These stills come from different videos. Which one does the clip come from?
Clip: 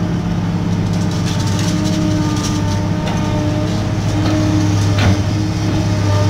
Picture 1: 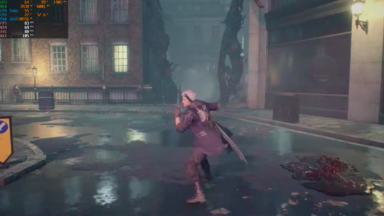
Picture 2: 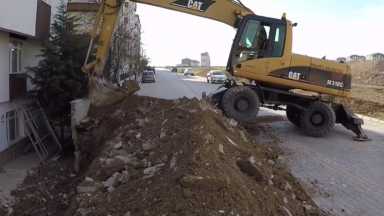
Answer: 2